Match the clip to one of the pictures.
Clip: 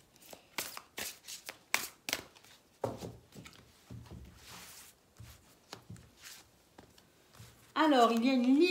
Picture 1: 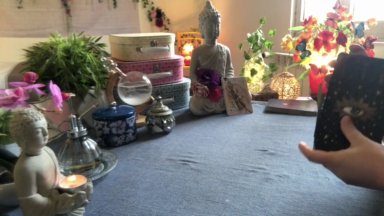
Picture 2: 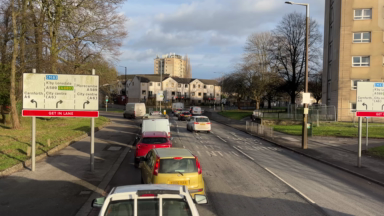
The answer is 1